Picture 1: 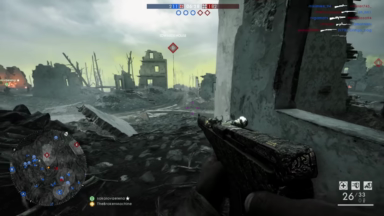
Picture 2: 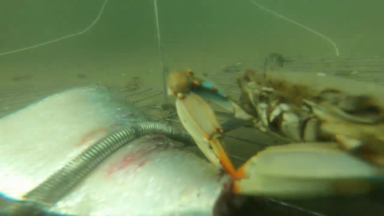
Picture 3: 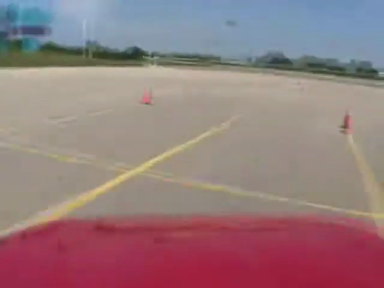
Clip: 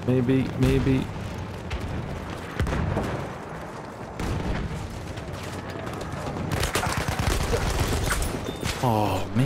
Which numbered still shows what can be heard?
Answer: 1